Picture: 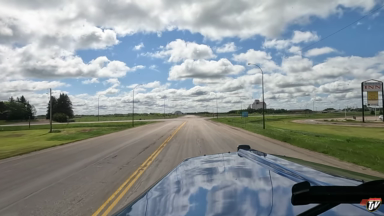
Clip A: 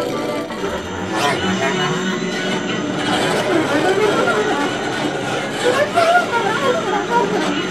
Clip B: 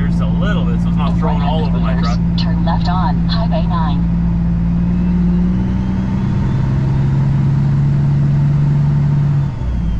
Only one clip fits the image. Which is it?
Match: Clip B